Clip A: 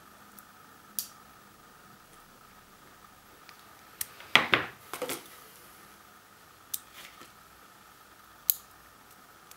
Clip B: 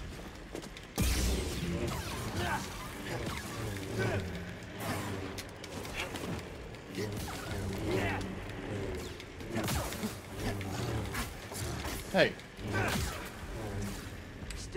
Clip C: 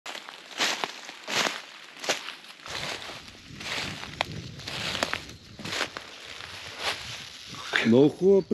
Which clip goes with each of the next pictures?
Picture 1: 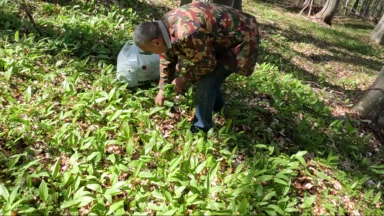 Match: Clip C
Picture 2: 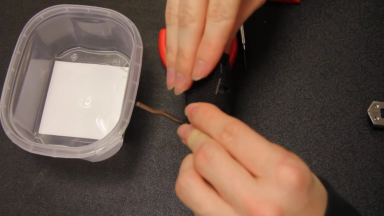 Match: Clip A